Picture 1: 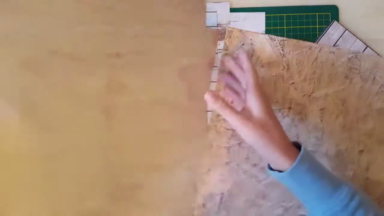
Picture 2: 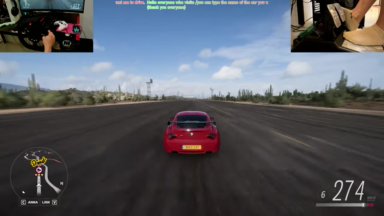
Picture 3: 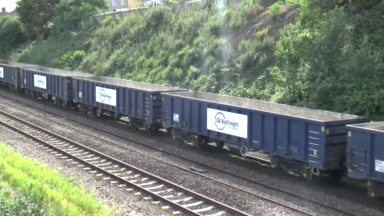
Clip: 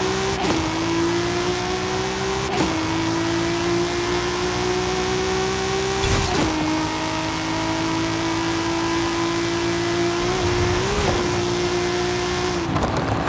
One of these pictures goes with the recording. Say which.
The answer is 2